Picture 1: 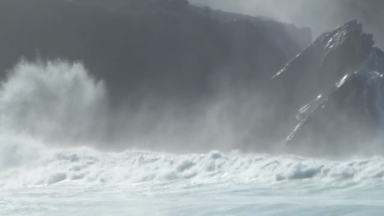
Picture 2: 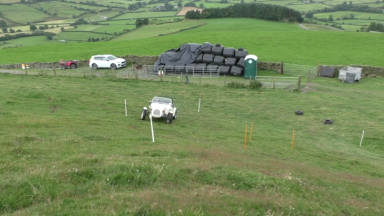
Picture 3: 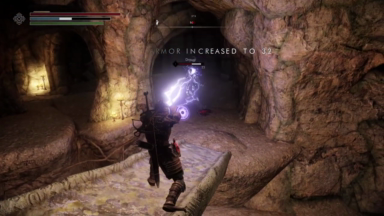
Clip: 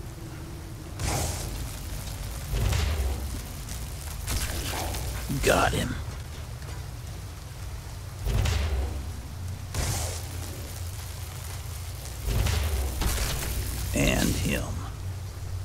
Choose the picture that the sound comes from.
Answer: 3